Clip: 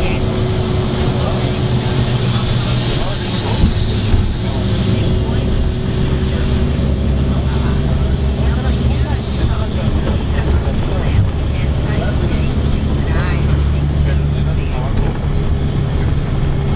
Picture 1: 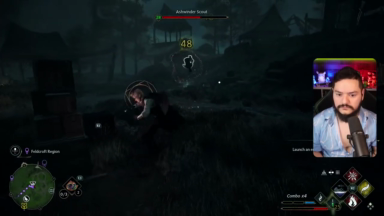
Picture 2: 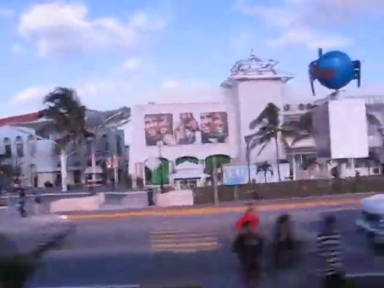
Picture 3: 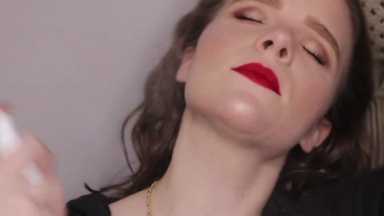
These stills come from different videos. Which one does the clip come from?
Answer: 2